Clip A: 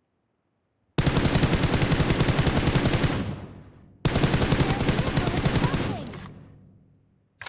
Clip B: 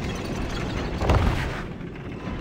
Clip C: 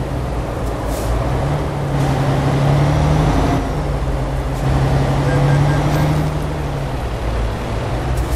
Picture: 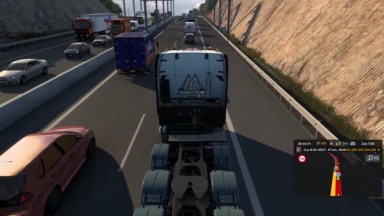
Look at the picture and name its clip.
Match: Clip C